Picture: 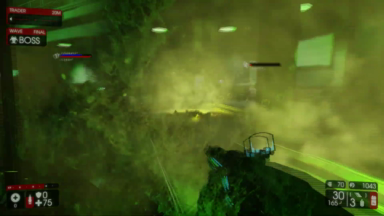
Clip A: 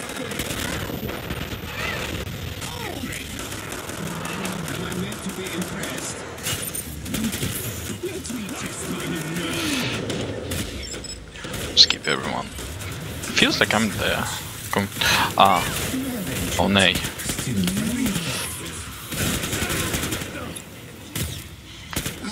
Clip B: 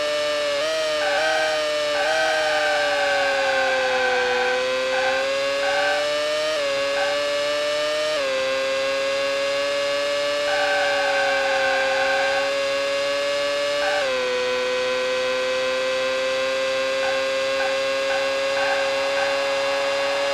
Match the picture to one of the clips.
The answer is A